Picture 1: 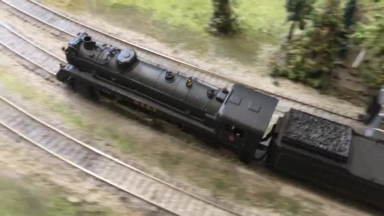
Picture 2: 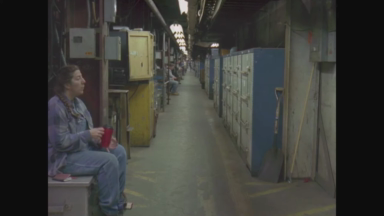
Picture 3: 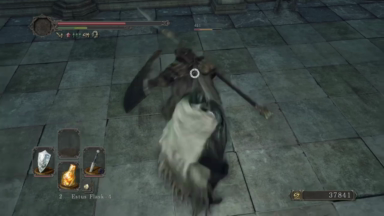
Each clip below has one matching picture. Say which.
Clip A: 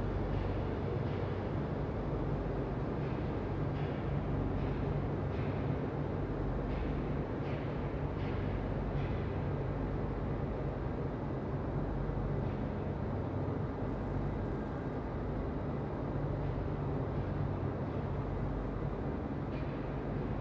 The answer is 2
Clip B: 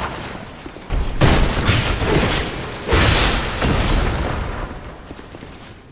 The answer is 3